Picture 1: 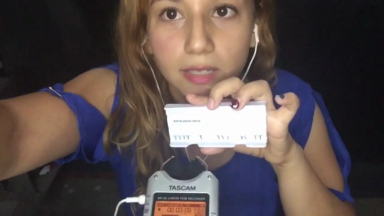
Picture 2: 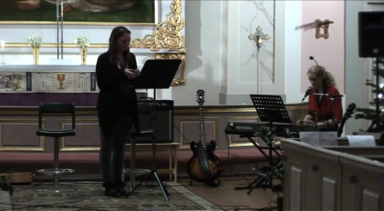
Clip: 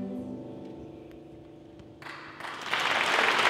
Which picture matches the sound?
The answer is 2